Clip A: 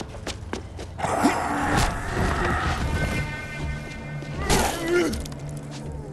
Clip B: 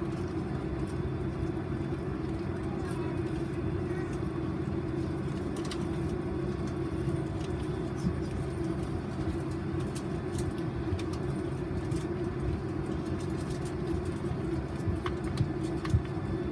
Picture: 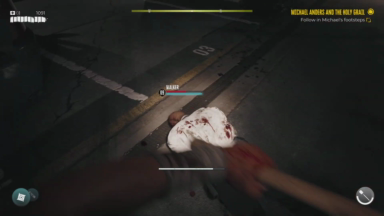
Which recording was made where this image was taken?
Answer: A